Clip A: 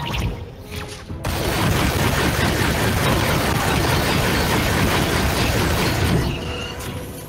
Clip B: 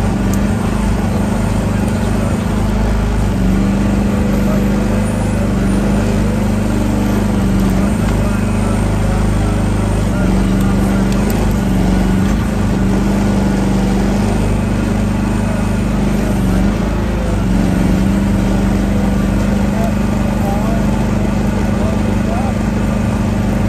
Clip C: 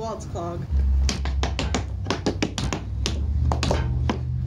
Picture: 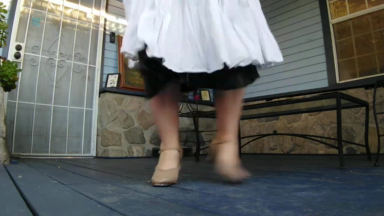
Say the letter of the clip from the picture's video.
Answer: C